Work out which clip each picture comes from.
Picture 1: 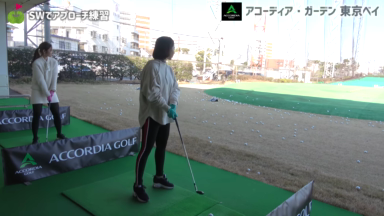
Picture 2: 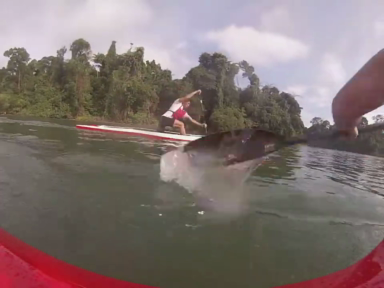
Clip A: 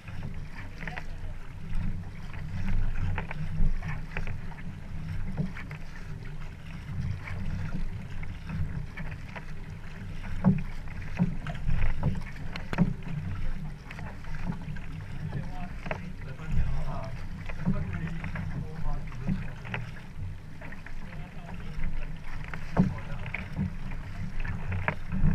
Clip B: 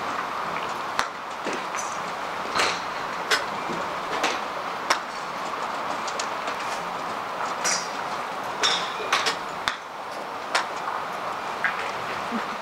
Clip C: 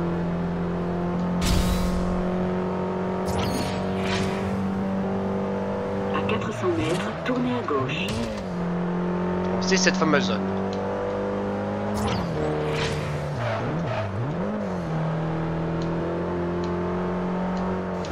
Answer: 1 B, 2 A